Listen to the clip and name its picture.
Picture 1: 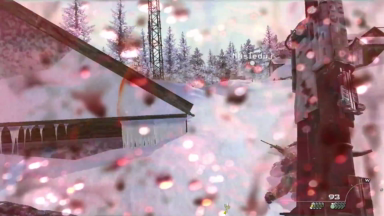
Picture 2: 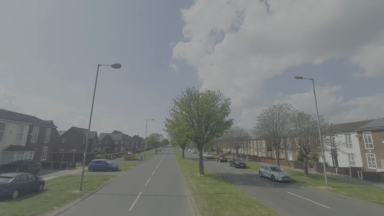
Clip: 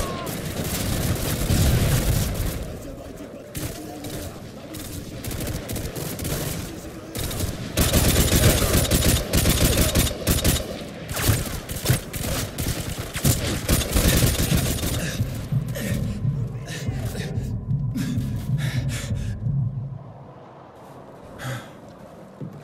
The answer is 1